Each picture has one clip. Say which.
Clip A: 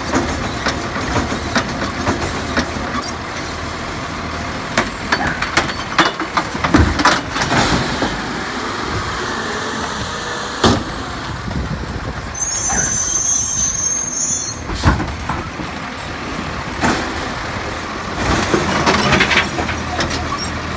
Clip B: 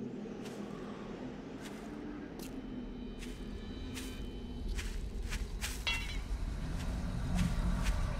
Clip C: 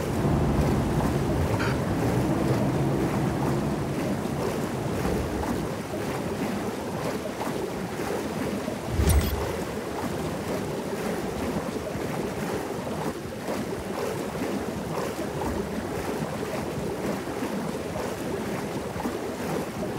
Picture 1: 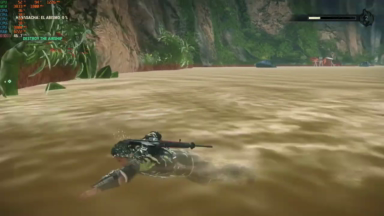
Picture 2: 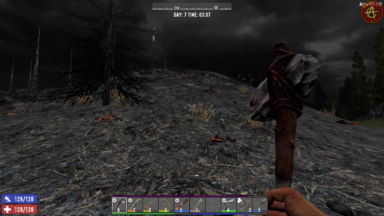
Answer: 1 C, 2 B